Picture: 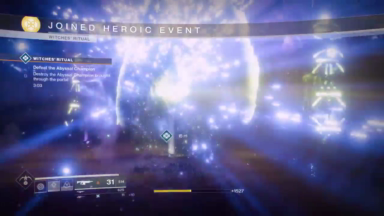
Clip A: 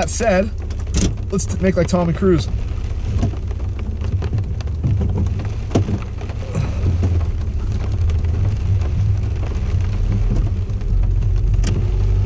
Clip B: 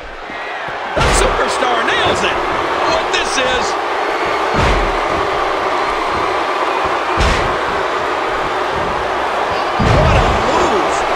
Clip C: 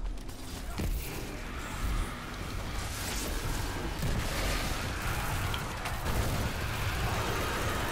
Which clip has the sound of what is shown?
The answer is C